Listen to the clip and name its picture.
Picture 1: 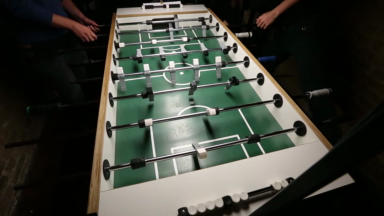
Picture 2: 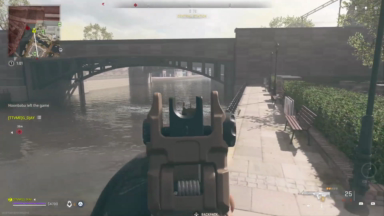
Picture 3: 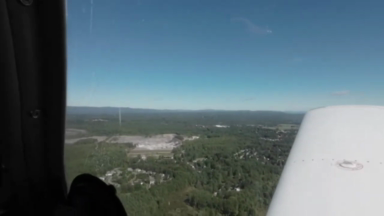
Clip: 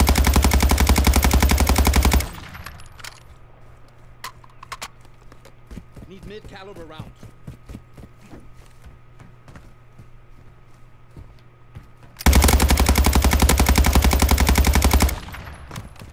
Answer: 2